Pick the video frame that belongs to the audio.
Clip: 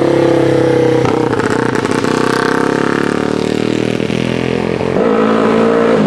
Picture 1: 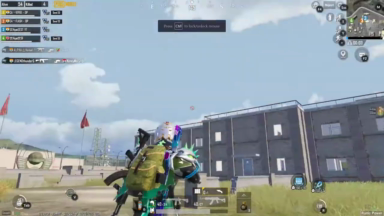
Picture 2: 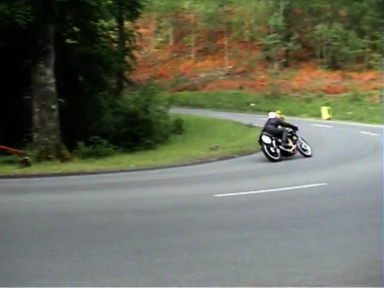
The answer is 2